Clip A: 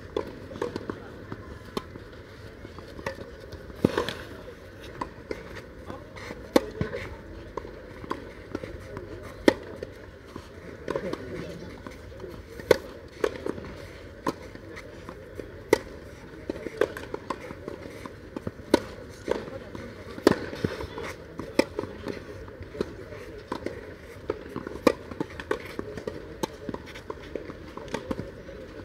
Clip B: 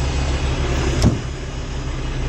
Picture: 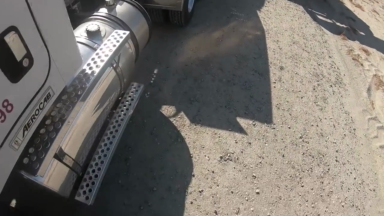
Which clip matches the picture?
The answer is B